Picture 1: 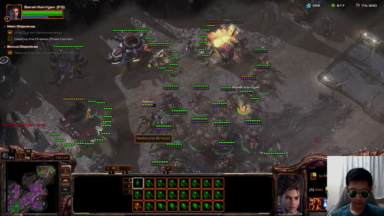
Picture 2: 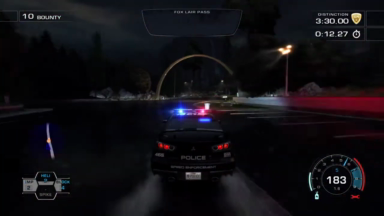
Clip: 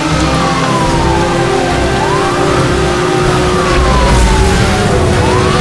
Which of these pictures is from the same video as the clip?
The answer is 2